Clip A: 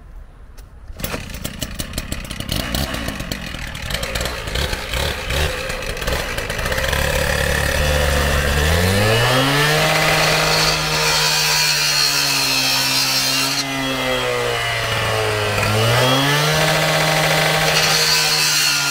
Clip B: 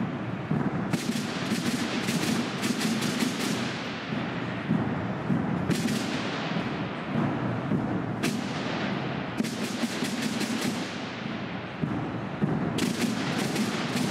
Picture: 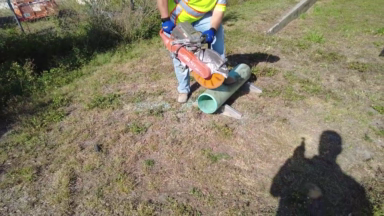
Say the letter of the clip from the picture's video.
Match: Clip A